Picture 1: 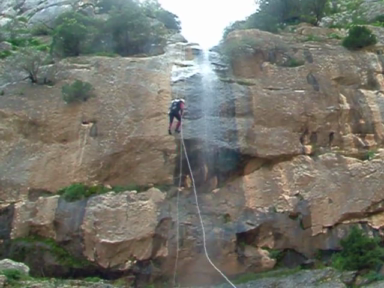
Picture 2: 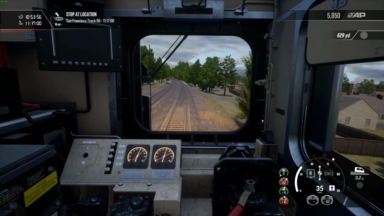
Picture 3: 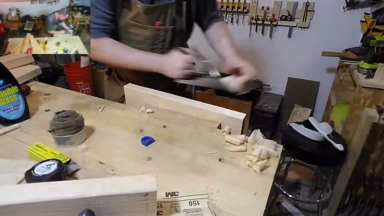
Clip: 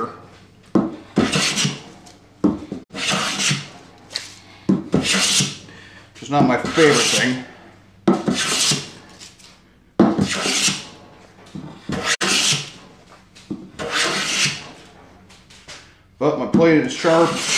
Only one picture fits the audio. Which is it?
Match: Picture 3